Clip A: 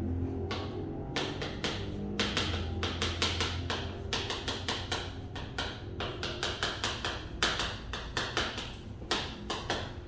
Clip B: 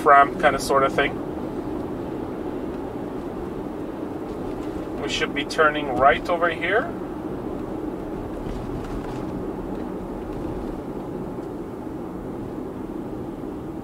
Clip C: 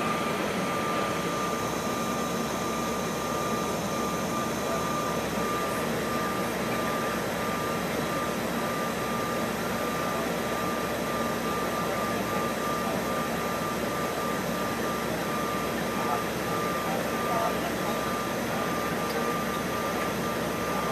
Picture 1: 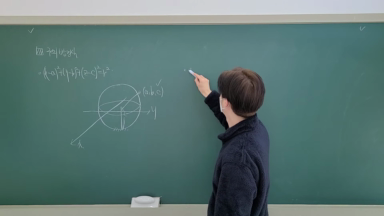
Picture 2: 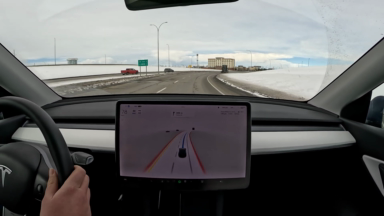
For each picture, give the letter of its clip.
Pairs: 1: A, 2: B